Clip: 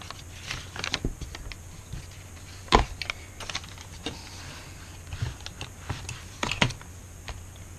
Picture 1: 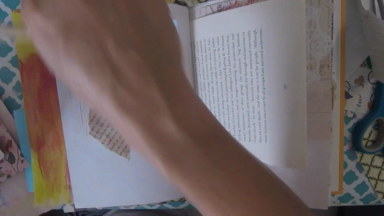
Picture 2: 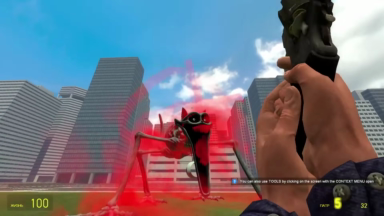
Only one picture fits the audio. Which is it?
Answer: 1